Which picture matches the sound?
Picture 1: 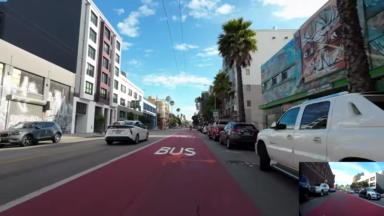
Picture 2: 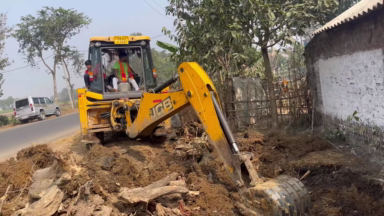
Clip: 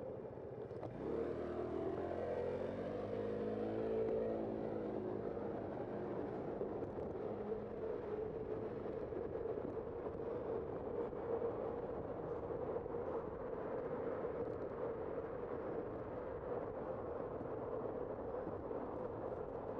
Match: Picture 1